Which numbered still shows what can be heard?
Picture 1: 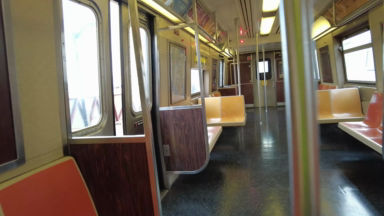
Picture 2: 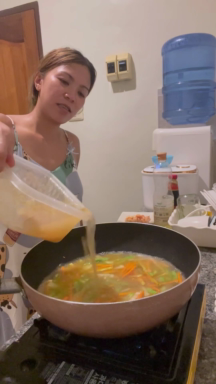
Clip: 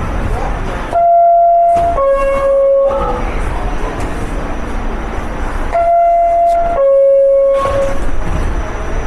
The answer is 1